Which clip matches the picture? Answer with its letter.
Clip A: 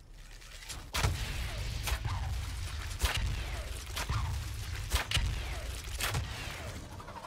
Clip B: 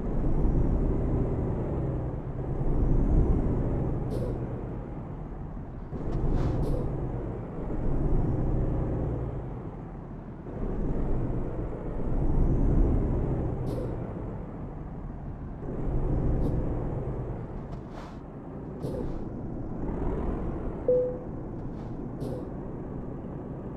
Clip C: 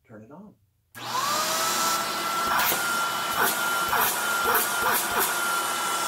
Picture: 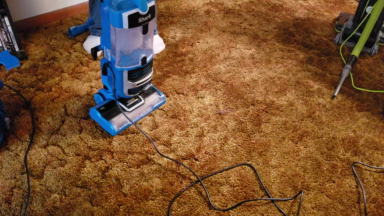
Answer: C